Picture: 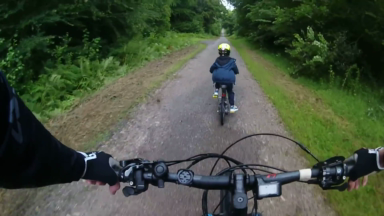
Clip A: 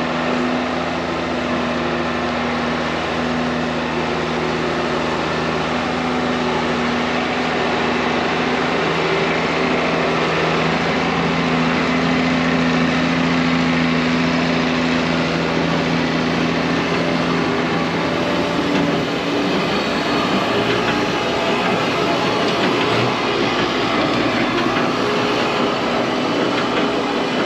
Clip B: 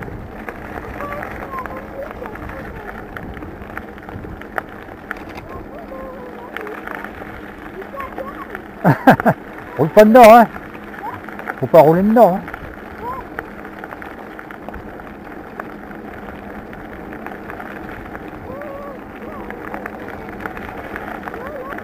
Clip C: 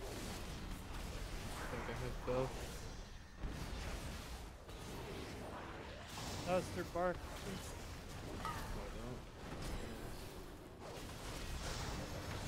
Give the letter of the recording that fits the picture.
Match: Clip B